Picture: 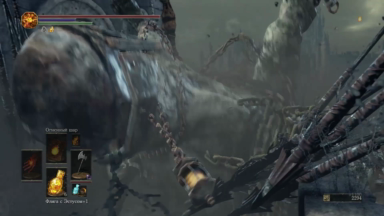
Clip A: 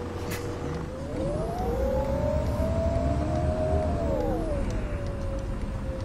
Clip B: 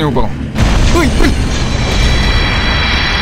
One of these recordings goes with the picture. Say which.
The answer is B